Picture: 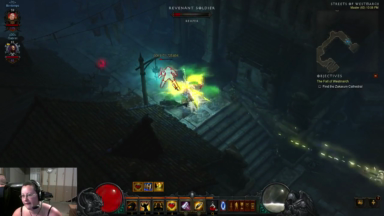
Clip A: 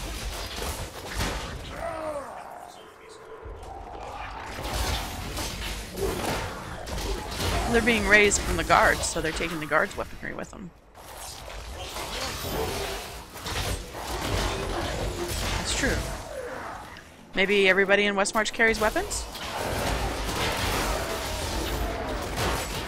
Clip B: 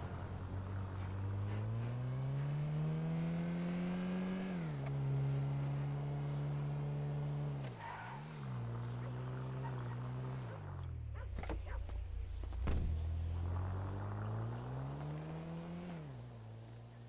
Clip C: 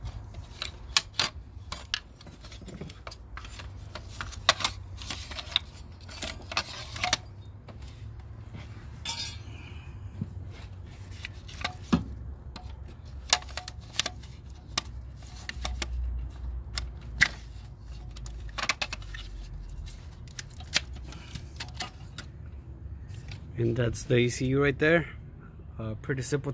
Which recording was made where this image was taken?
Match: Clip A